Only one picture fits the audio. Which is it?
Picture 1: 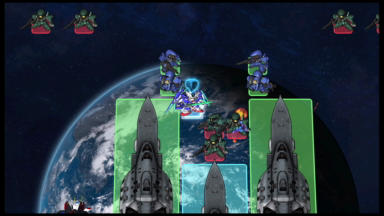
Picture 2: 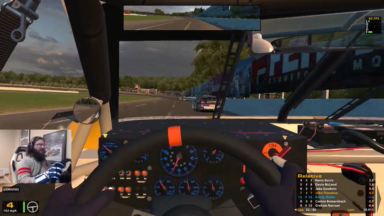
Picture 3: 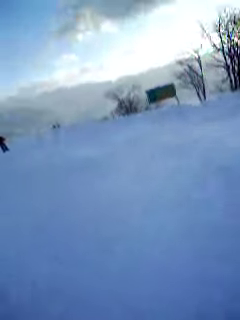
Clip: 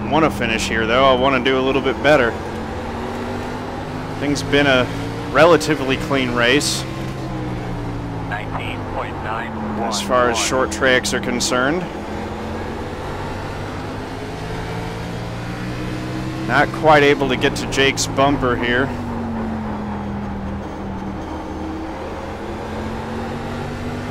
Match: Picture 2